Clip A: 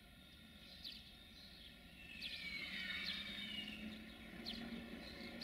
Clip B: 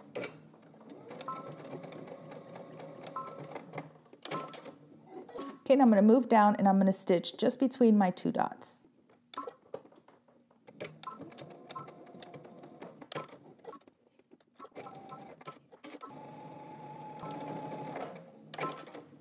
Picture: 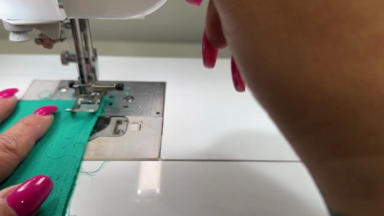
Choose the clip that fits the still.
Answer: B